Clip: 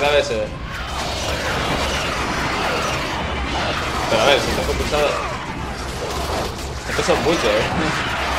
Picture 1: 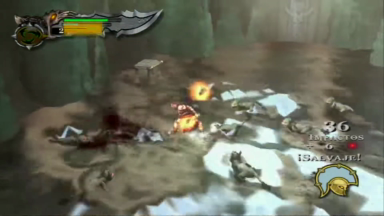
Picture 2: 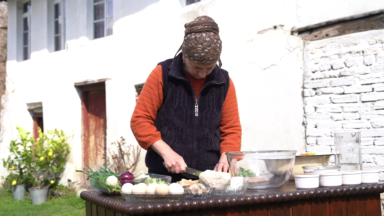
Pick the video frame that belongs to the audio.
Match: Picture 1